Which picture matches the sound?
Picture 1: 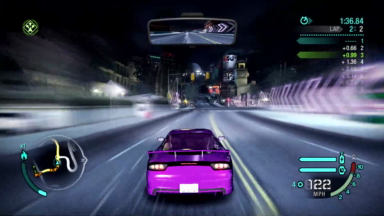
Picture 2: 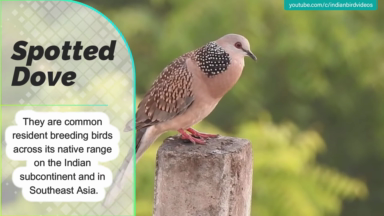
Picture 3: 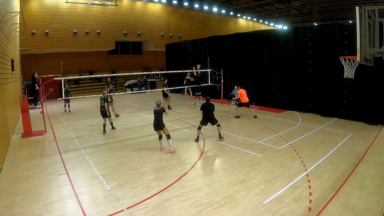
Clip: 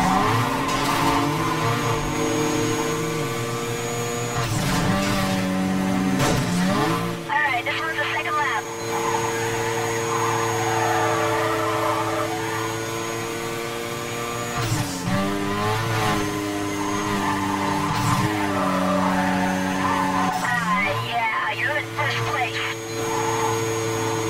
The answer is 1